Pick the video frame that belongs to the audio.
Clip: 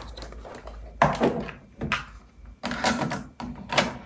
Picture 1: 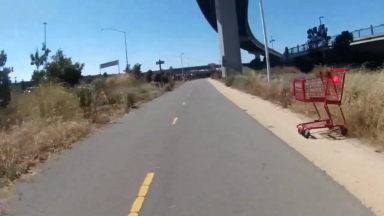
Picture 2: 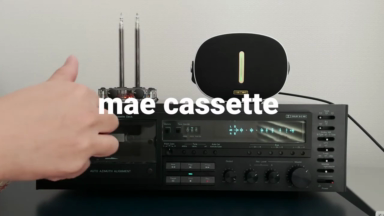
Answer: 2